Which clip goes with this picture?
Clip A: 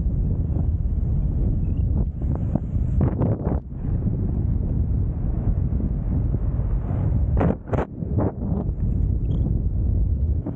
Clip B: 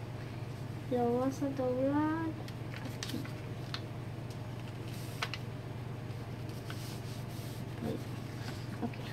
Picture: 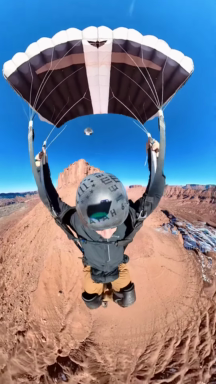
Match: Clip A